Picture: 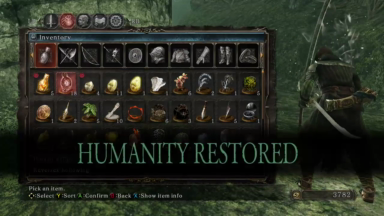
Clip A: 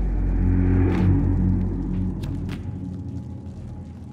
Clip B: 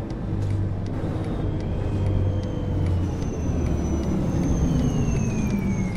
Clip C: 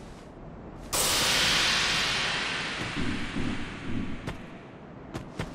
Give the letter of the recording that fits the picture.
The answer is C